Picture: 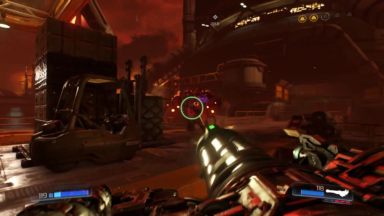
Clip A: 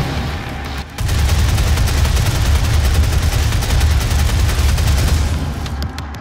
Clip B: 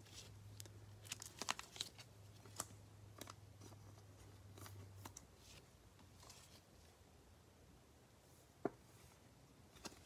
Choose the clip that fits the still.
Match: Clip A